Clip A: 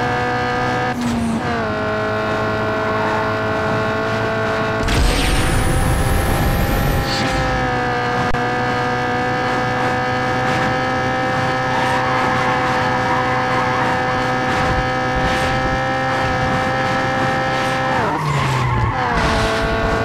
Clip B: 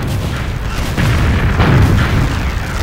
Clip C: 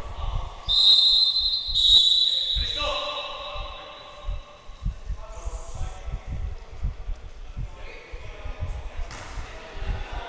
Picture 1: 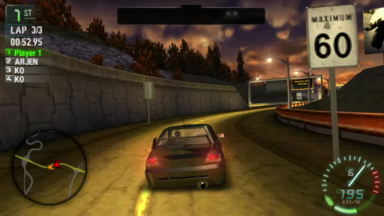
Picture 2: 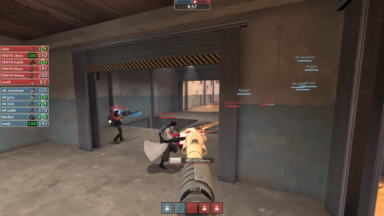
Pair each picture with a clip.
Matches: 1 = A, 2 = B